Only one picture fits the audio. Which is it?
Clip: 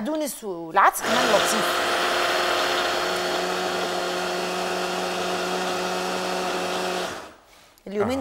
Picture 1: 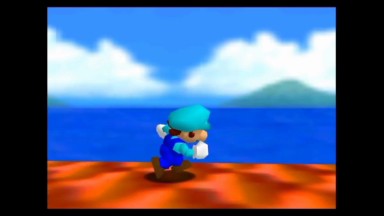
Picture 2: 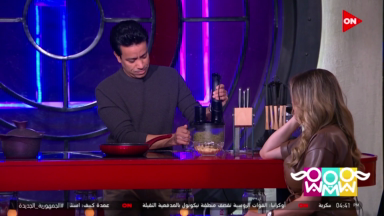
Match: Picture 2